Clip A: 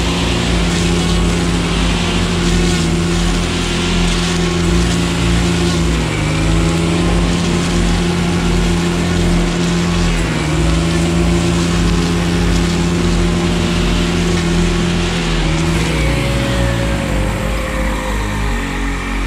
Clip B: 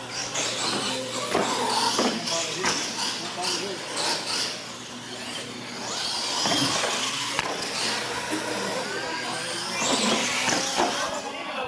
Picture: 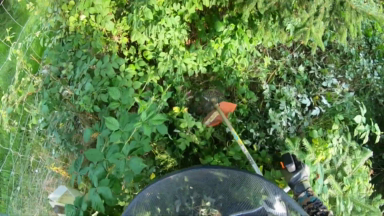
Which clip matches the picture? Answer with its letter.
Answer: A